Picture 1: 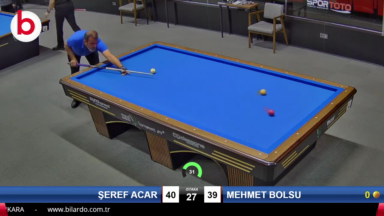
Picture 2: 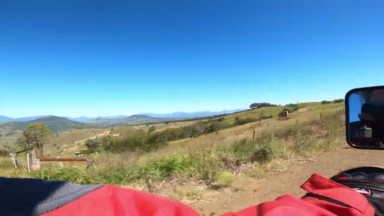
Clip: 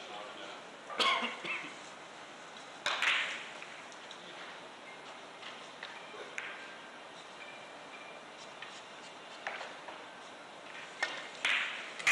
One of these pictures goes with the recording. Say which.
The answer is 1